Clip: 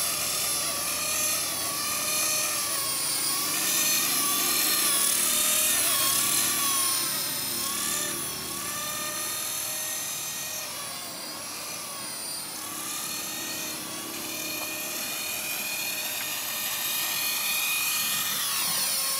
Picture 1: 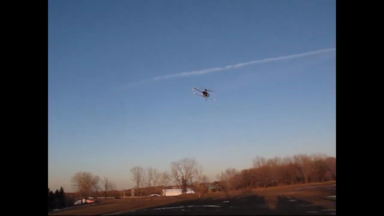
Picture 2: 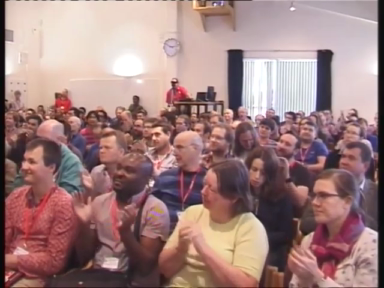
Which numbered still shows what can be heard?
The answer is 1